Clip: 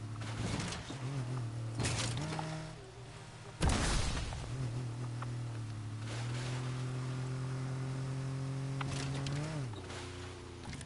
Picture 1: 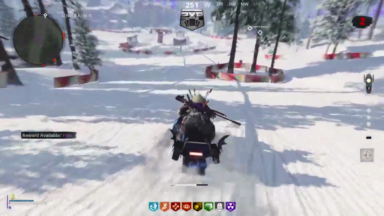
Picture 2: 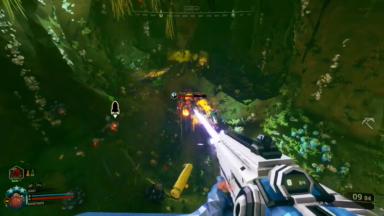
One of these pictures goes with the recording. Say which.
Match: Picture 1